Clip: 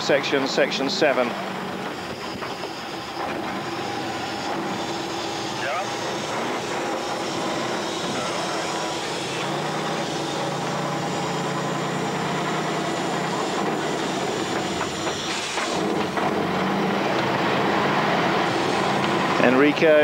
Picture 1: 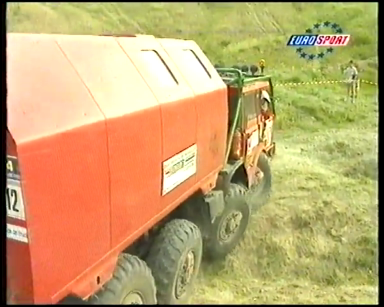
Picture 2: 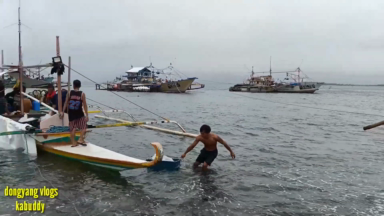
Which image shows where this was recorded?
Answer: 1